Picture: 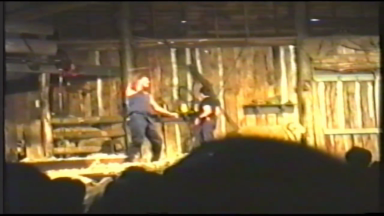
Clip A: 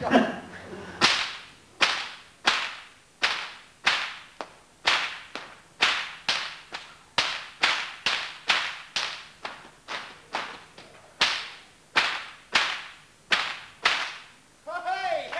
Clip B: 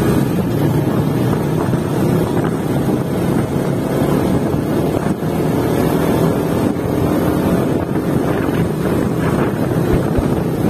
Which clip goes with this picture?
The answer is A